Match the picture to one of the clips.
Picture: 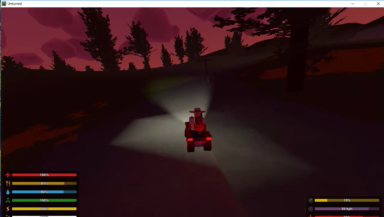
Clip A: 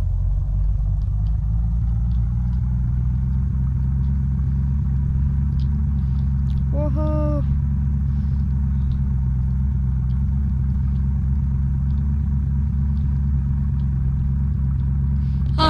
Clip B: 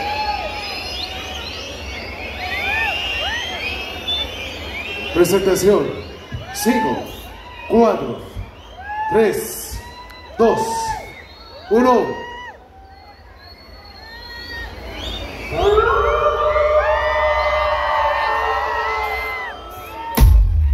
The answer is A